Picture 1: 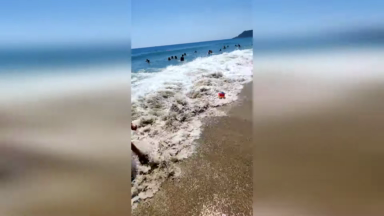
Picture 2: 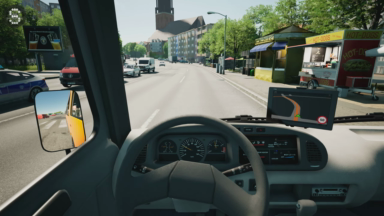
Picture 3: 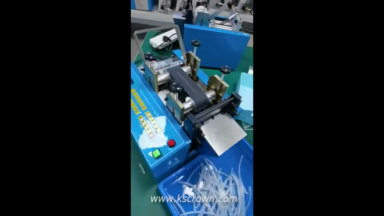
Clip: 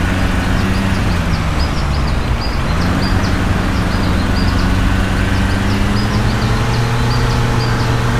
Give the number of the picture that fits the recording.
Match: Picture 2